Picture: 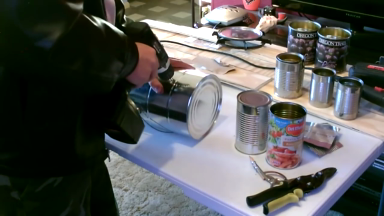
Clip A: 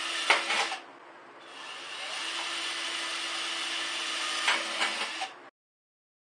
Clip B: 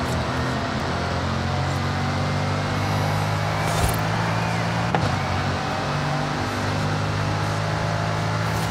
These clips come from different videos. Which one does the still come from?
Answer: A